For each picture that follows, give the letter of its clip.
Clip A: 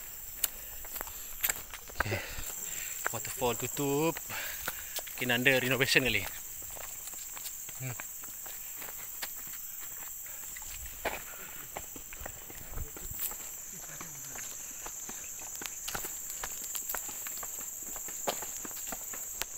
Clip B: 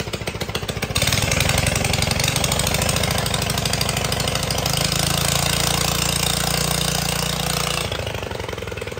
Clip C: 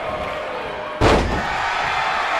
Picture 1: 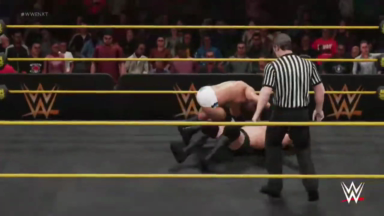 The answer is C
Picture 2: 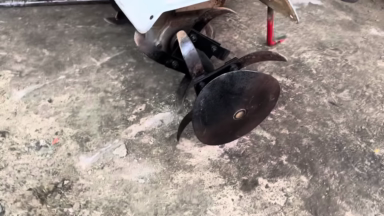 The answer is B